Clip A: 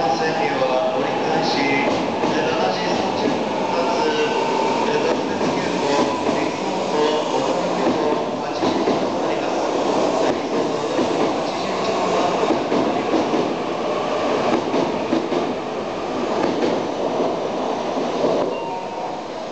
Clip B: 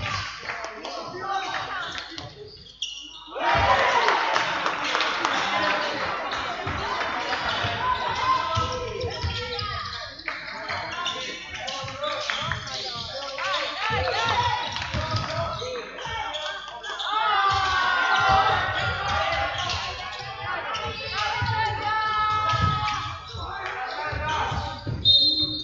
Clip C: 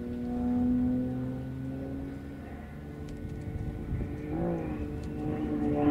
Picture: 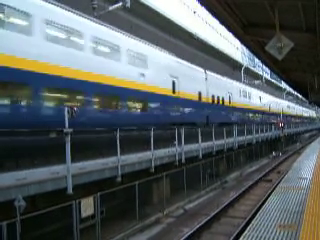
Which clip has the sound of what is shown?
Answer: A